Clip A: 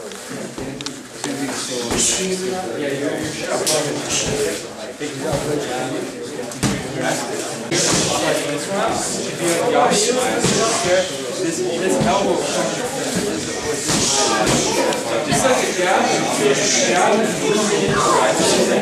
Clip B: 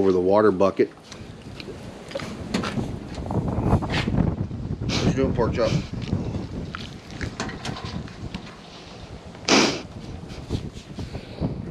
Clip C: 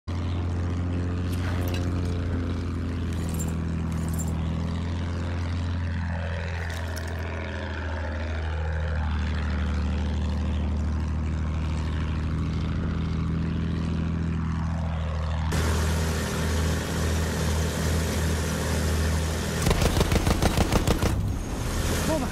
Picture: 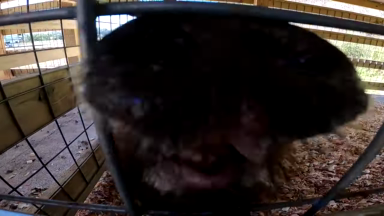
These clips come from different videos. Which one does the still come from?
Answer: B